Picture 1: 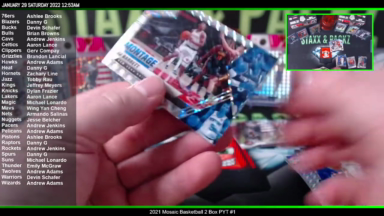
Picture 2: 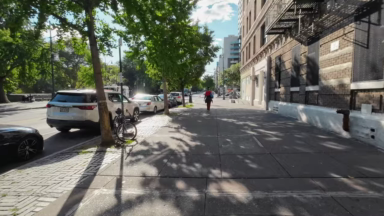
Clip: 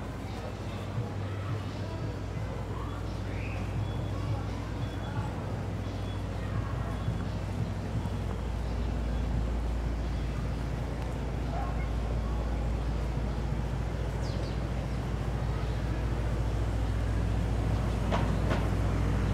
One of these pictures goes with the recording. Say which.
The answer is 2